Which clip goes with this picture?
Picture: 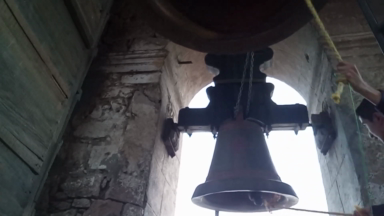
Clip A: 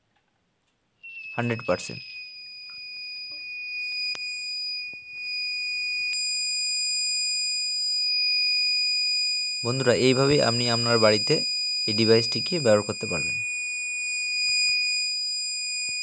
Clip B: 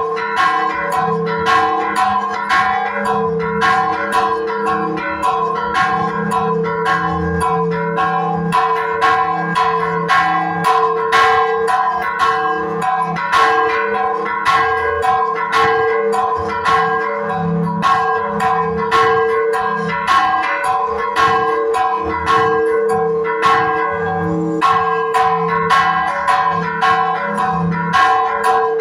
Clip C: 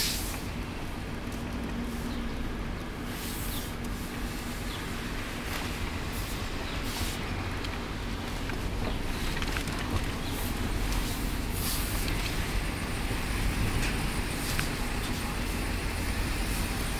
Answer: B